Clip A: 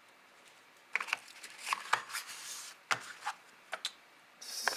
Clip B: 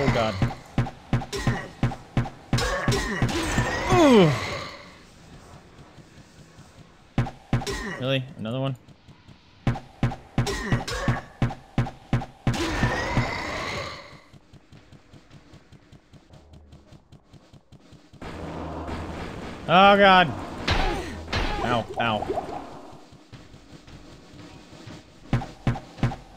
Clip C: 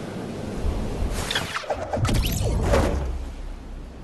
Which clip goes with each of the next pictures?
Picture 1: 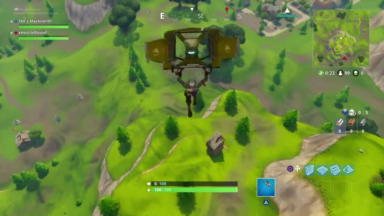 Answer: C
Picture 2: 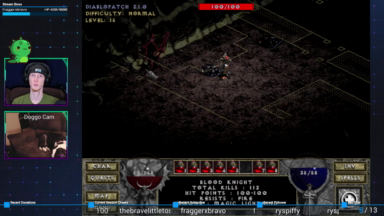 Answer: B